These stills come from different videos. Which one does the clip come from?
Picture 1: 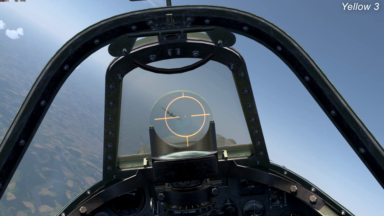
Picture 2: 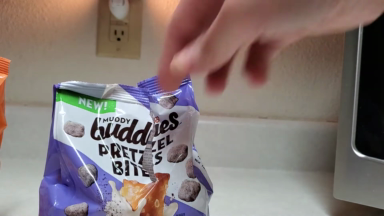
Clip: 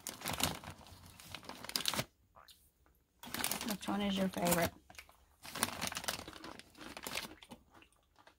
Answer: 2